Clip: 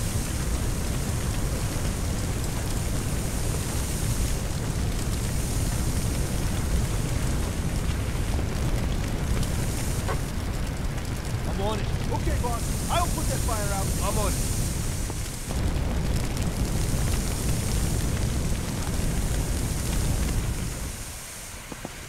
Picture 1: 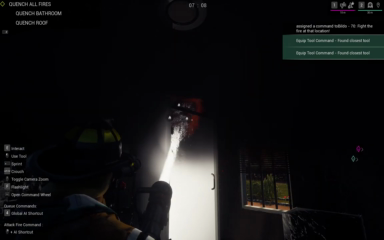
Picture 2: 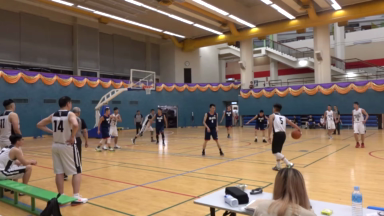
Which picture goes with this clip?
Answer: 1